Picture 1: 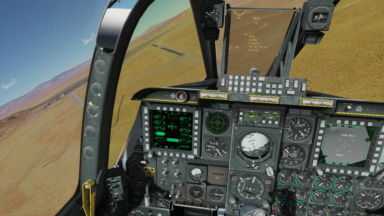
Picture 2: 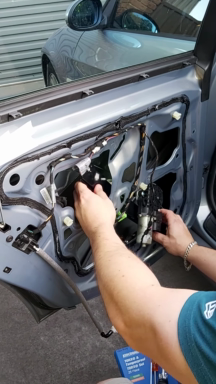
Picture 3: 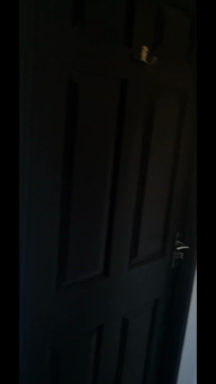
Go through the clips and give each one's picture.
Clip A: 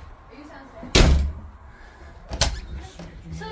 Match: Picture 3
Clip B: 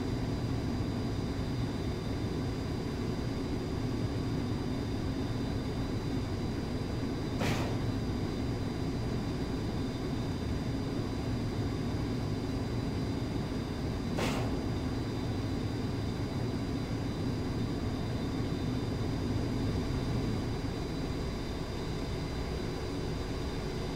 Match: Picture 1